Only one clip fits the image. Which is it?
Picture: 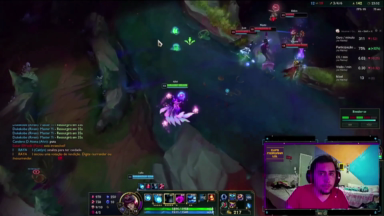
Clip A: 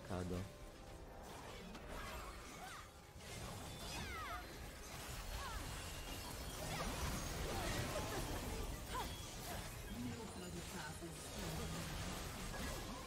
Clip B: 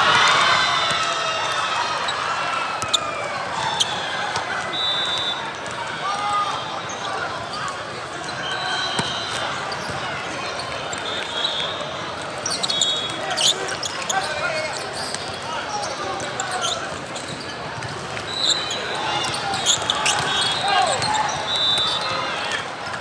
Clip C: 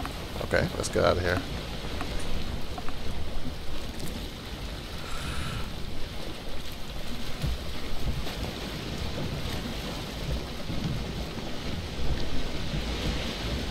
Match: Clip A